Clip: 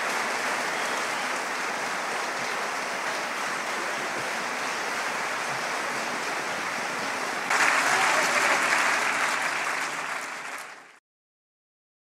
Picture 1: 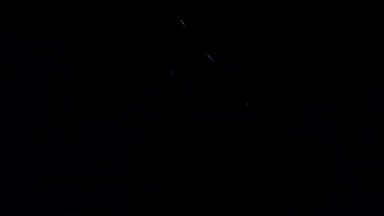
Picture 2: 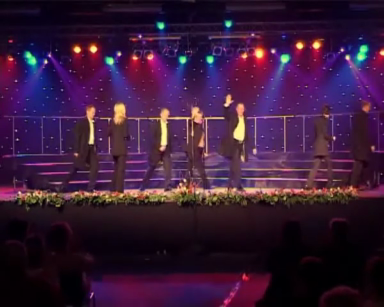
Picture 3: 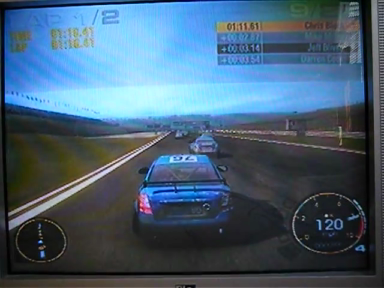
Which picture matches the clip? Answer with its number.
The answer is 2